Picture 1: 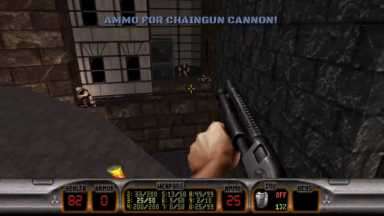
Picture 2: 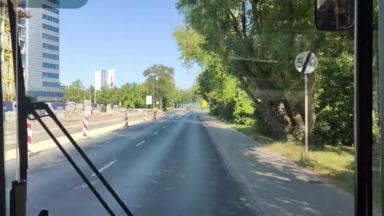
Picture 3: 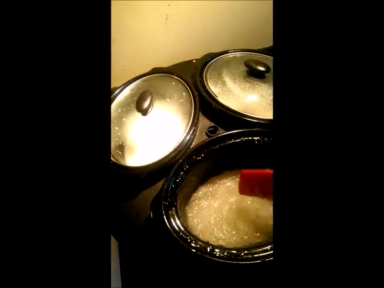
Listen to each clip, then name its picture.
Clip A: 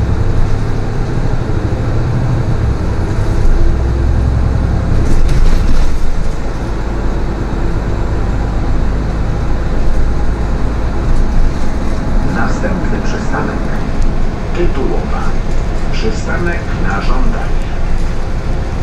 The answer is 2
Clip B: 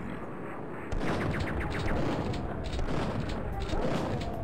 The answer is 1